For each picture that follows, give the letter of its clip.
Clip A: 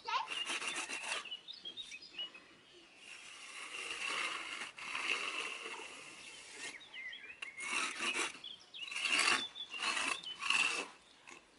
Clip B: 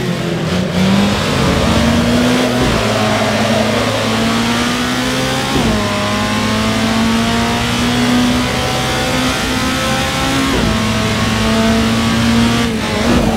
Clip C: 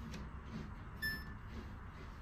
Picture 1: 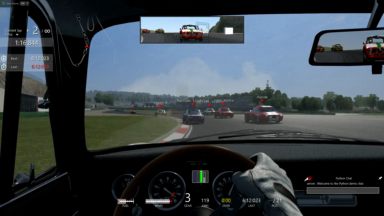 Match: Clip B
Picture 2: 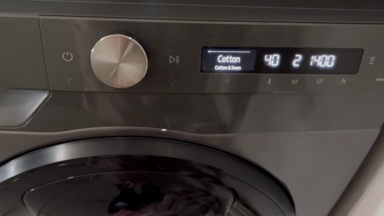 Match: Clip C